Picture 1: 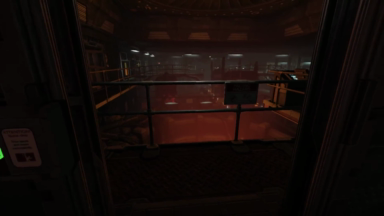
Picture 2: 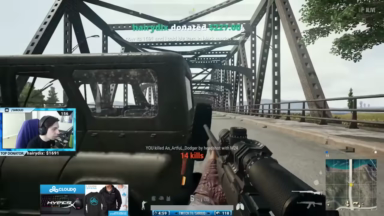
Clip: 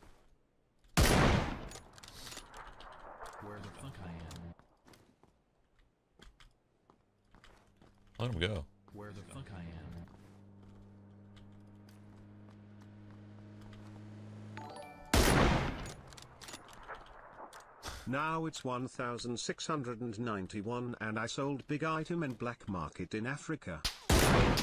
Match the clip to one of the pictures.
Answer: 2